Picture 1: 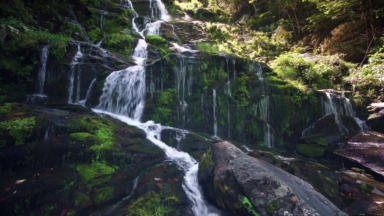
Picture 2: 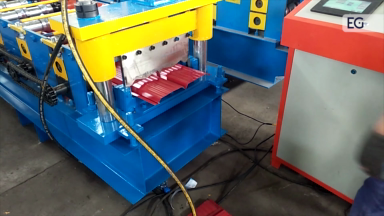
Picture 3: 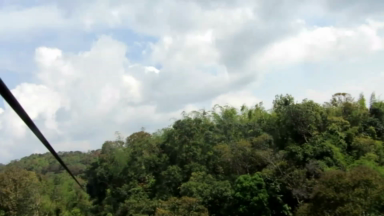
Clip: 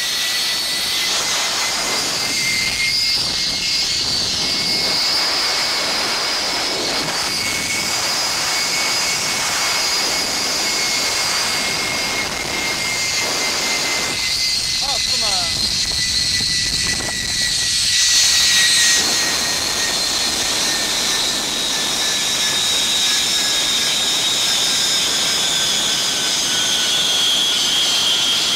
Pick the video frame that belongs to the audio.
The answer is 3